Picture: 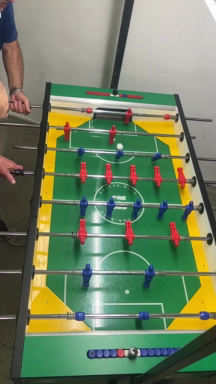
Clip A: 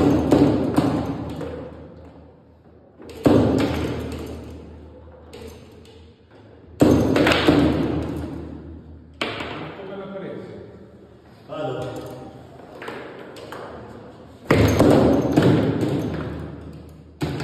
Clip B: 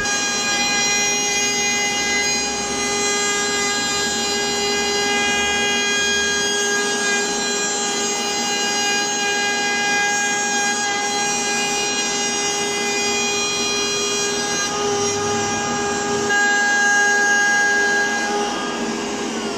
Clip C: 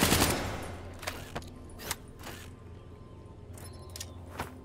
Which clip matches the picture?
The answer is A